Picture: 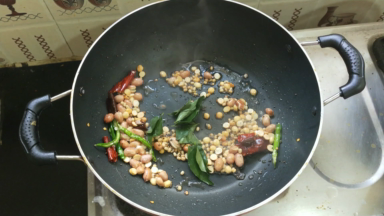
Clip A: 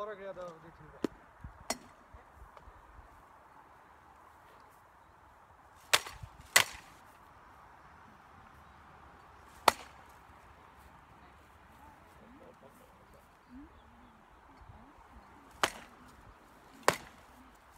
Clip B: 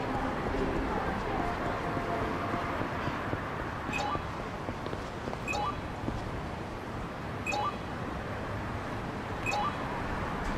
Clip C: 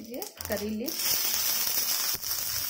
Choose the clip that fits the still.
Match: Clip C